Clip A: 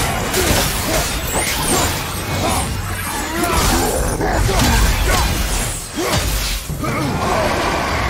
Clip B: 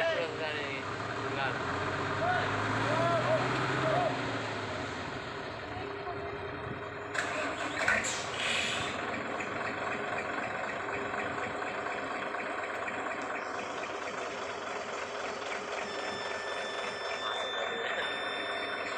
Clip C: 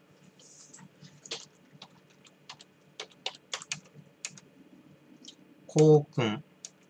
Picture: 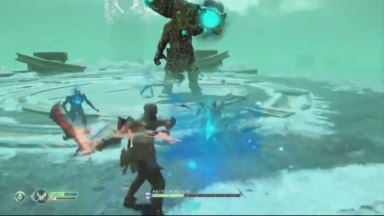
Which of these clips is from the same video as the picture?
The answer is A